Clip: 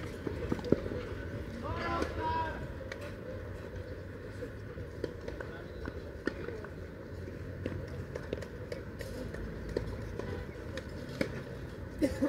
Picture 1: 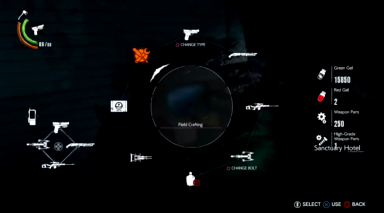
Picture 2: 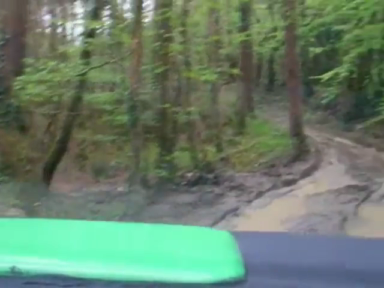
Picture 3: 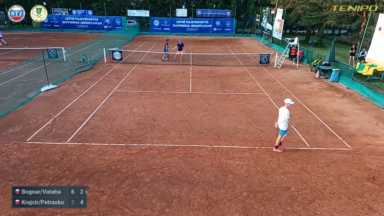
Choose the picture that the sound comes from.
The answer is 3